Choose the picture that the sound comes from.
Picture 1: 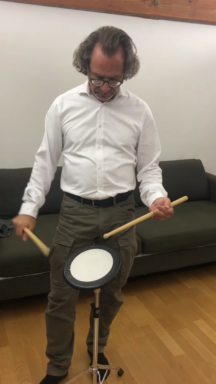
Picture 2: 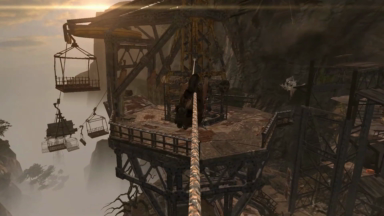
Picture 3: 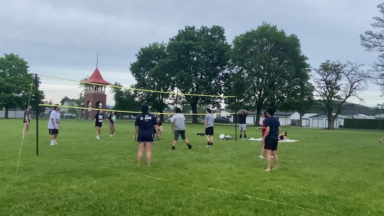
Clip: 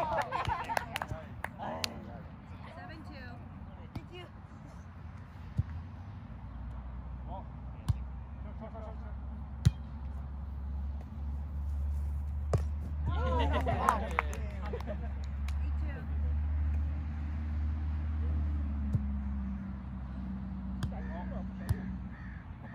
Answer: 3